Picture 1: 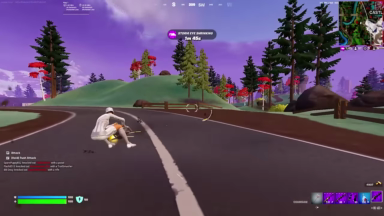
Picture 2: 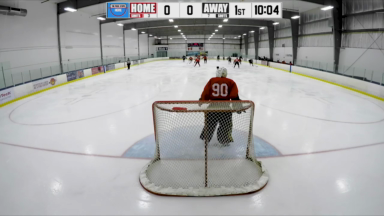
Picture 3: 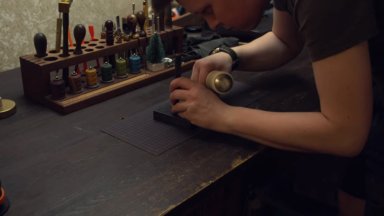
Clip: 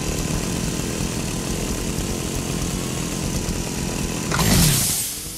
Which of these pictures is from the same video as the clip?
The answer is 1